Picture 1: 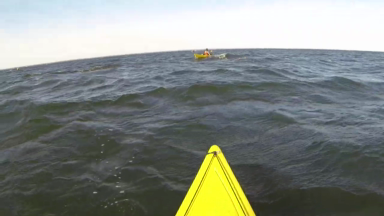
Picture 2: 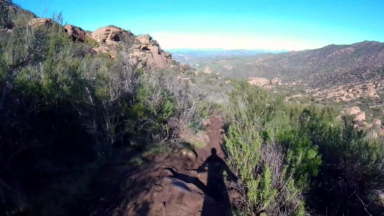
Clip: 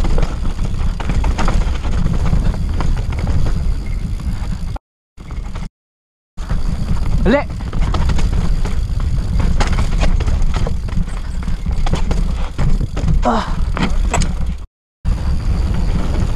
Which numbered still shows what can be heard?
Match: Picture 2